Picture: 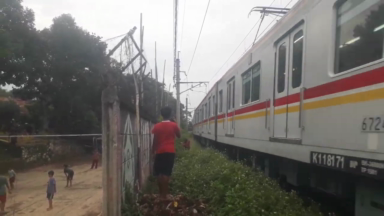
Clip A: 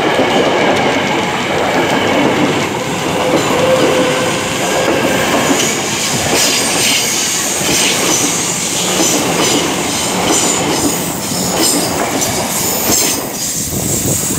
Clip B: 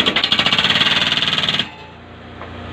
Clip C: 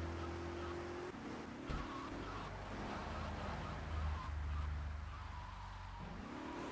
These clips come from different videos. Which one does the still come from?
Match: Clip A